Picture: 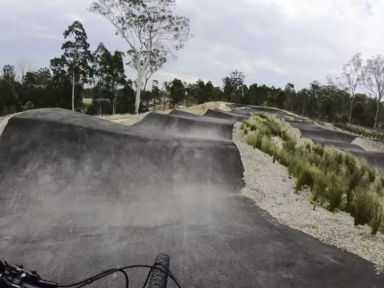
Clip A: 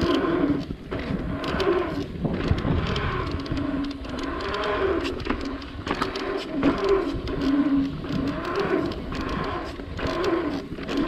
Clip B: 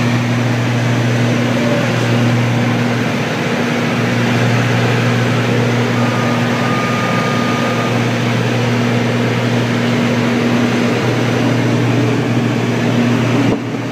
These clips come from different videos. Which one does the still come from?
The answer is A